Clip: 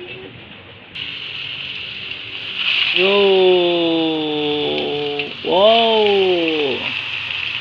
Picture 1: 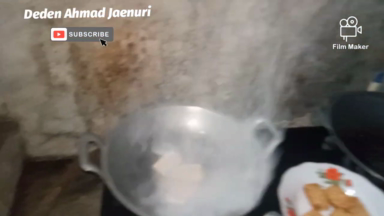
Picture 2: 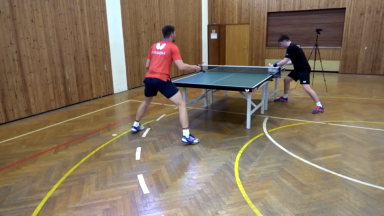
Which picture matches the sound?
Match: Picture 1